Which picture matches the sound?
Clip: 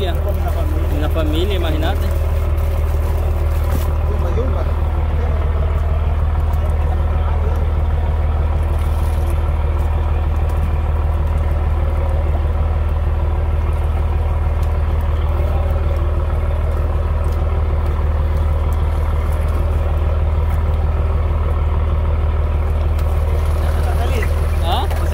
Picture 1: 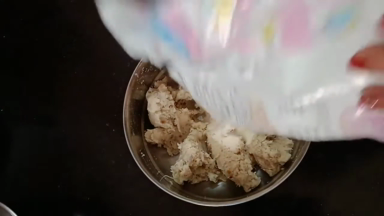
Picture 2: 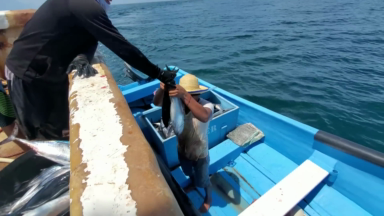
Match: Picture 2